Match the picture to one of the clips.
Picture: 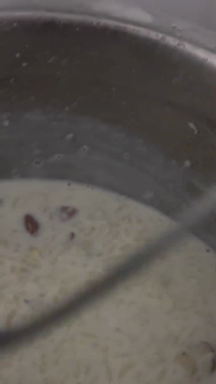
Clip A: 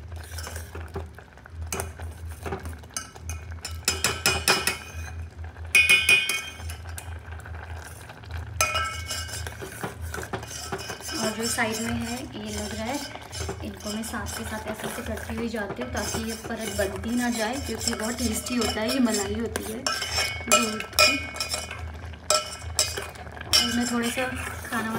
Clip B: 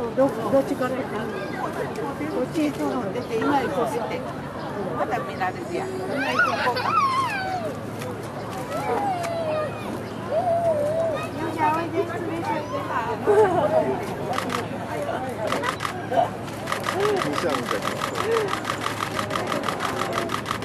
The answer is A